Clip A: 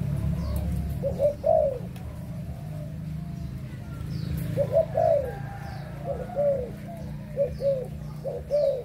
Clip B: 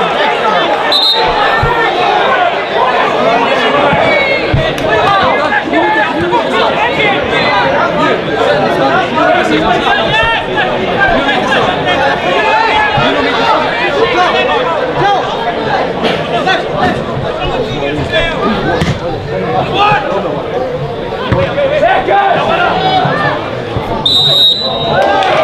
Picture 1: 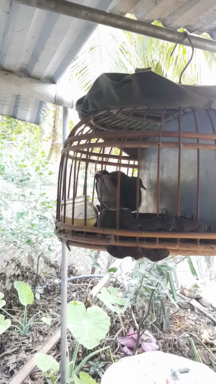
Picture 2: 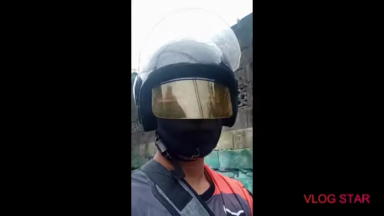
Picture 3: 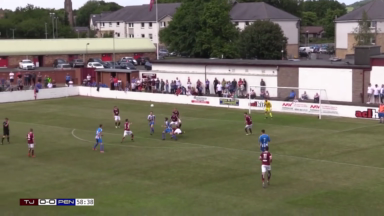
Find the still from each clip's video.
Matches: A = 1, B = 3